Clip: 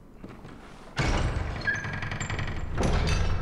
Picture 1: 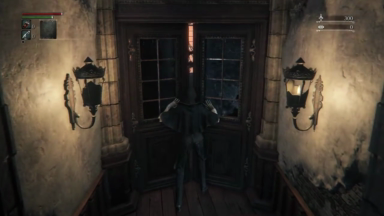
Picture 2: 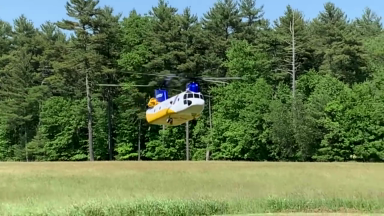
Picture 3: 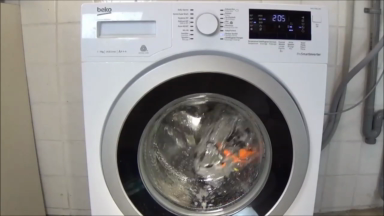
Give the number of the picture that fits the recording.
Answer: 1